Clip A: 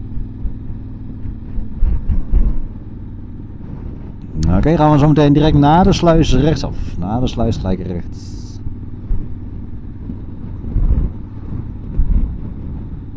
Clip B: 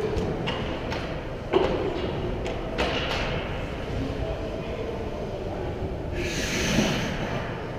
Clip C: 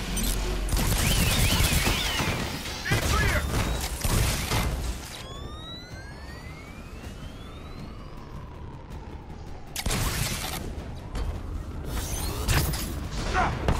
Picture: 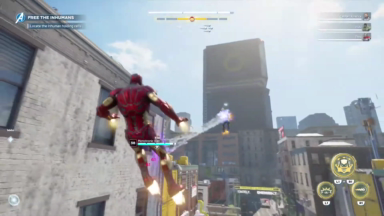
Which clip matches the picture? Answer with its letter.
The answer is C